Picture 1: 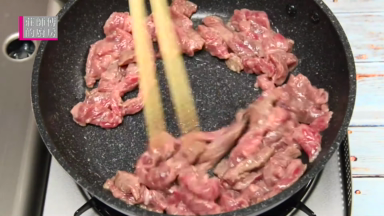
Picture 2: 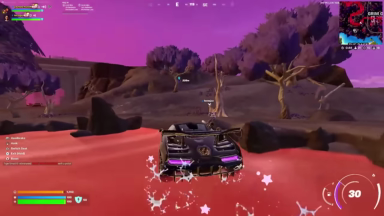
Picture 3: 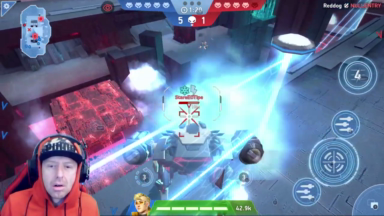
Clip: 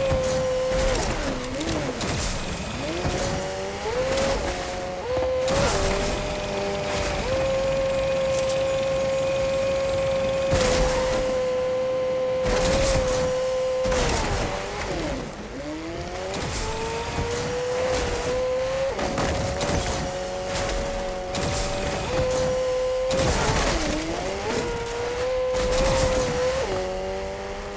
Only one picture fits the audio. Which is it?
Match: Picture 2